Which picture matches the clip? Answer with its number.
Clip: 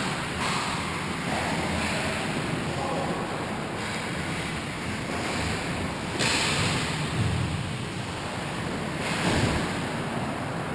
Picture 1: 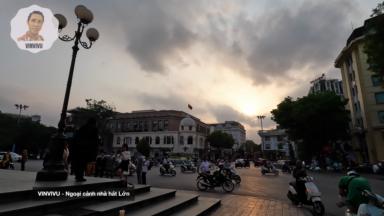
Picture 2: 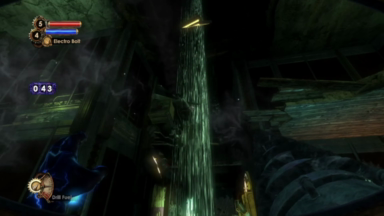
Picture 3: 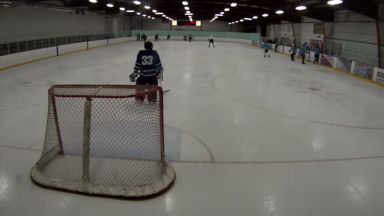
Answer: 3